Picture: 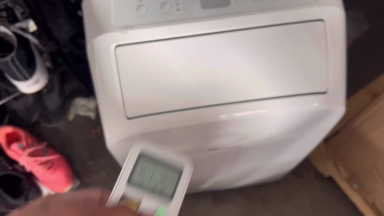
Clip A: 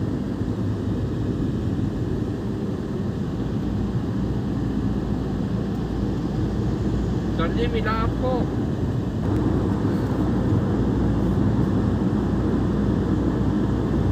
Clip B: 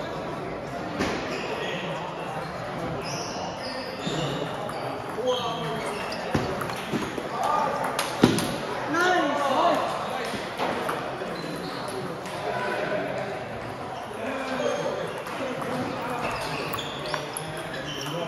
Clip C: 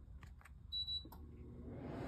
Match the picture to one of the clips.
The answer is C